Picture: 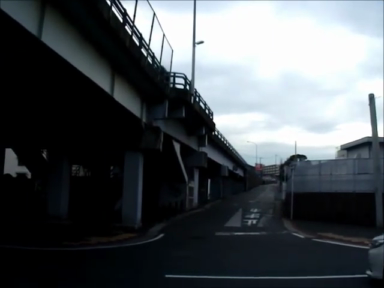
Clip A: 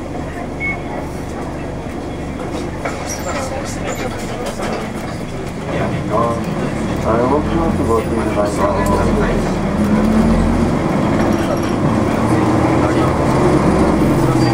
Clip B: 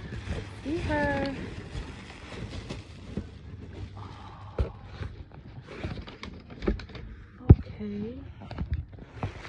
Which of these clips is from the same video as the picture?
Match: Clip A